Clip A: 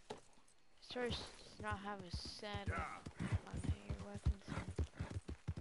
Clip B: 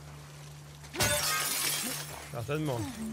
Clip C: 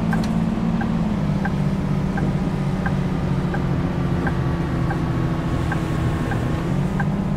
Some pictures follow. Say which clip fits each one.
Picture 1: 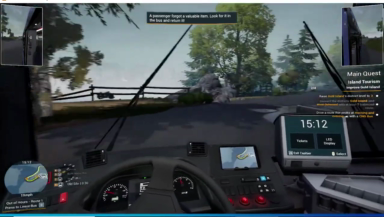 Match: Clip C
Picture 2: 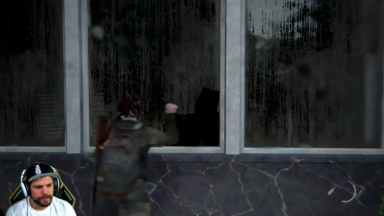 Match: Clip B